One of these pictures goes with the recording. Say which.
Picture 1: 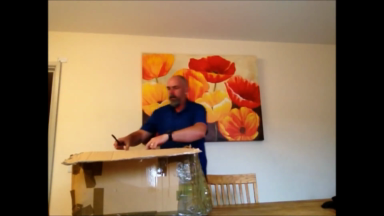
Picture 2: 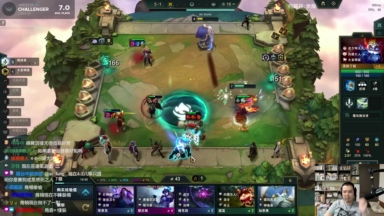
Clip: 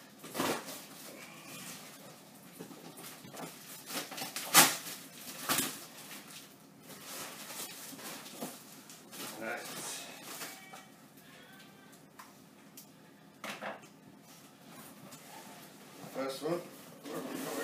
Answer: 1